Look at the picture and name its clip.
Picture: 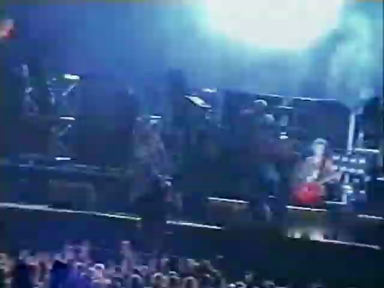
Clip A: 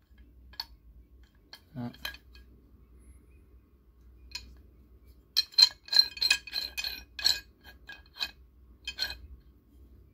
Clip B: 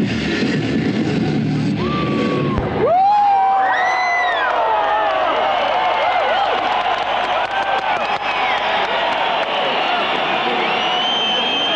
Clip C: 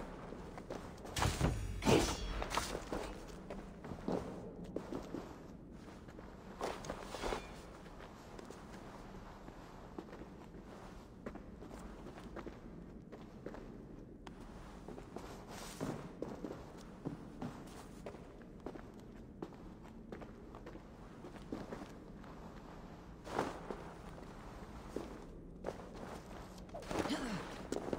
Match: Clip B